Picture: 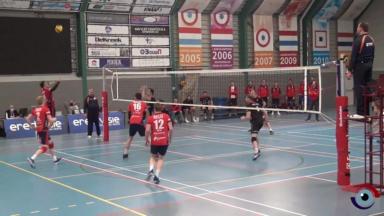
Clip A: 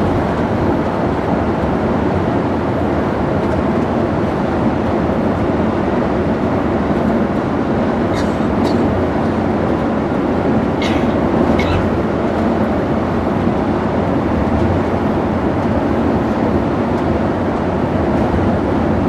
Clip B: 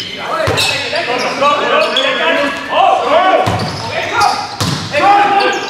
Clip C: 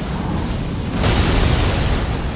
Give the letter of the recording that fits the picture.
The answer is B